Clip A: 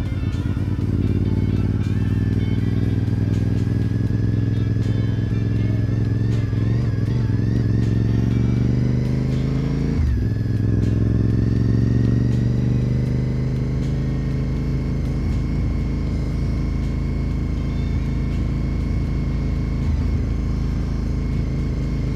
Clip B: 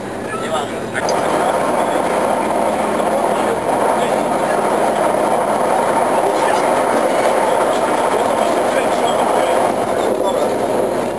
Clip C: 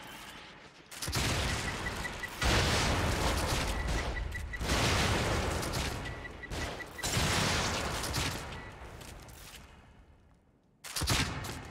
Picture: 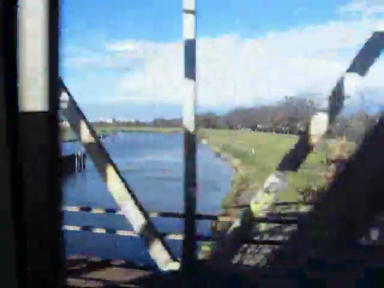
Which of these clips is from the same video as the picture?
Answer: B